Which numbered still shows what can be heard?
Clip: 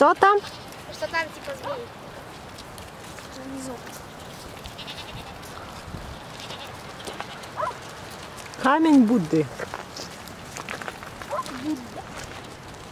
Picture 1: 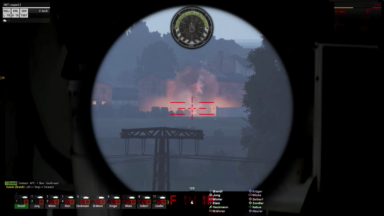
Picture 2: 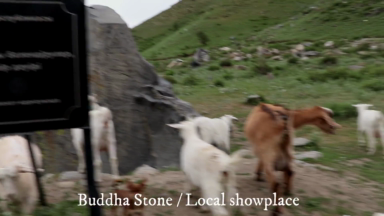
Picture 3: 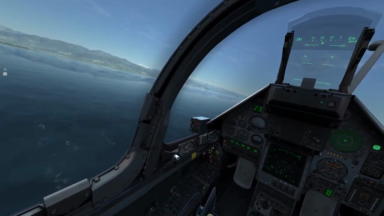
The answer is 2